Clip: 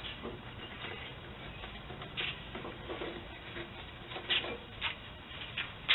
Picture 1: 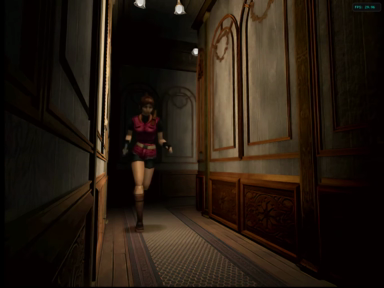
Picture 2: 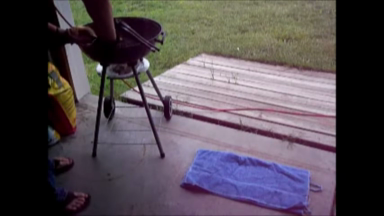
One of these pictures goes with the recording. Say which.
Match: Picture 2